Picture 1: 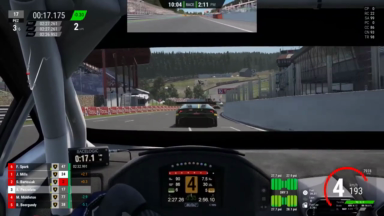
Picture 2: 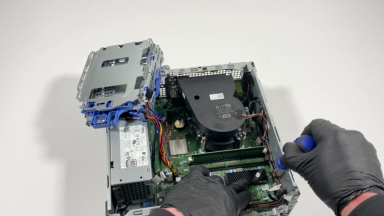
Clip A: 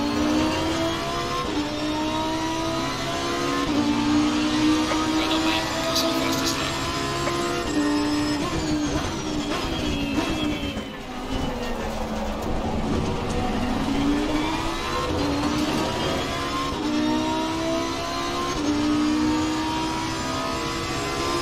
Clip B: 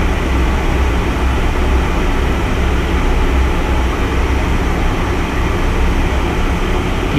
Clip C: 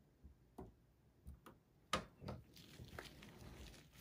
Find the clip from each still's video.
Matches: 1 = A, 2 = C